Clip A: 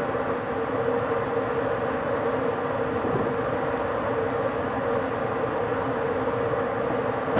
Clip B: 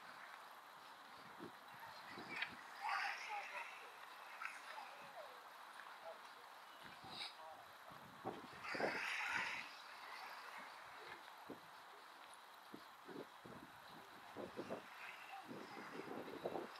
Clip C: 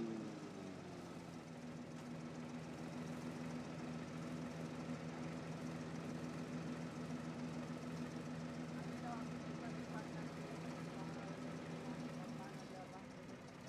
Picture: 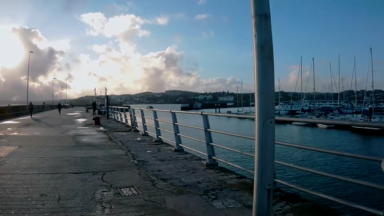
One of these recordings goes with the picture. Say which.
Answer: B